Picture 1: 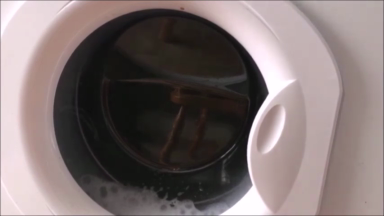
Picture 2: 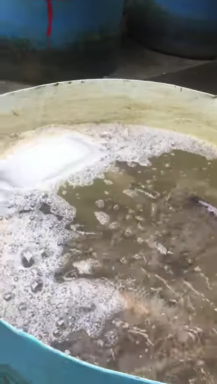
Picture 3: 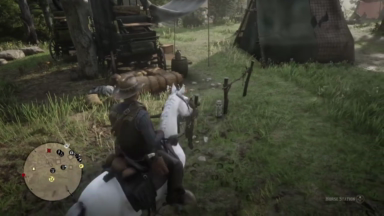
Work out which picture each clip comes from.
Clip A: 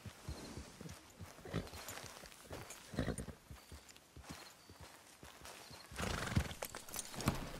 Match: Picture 3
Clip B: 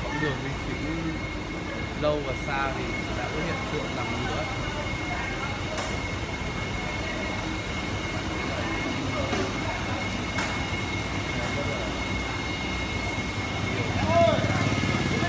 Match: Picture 2